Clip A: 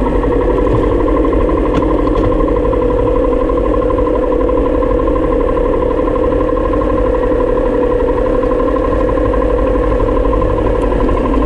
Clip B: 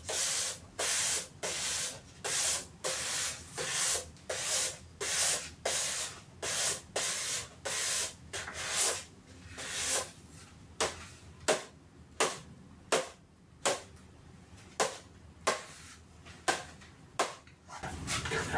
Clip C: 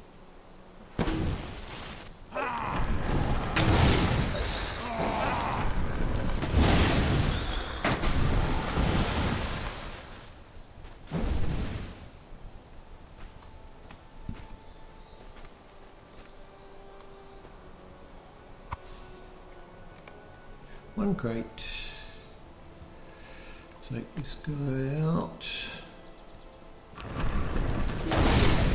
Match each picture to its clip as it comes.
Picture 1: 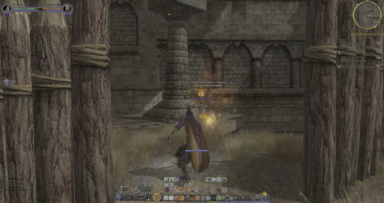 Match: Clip C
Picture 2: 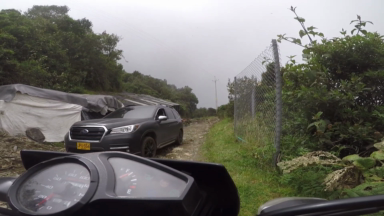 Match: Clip A